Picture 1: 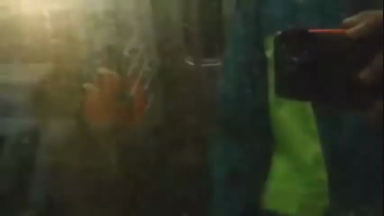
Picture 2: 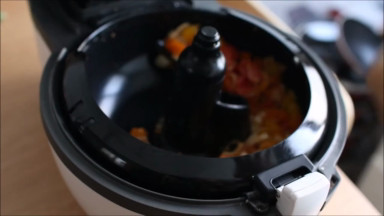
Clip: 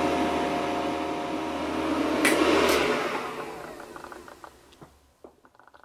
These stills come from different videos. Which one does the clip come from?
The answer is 2